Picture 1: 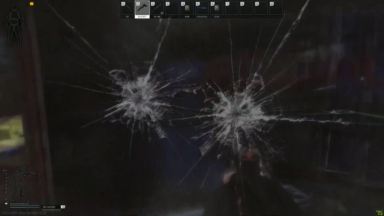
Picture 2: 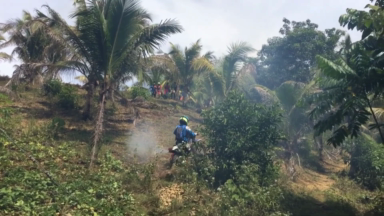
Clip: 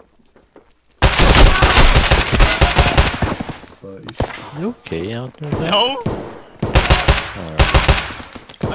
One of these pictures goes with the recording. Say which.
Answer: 1